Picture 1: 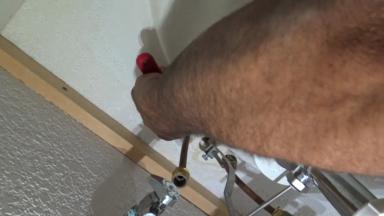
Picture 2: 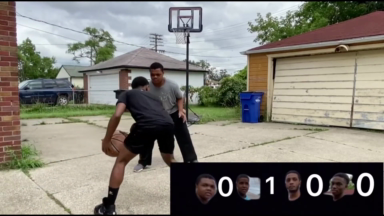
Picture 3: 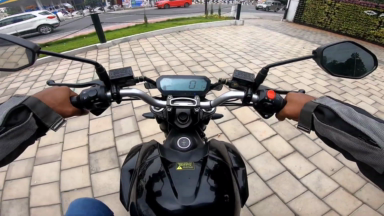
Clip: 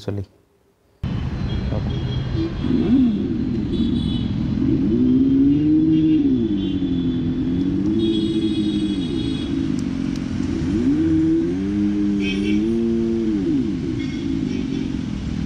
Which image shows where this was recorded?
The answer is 3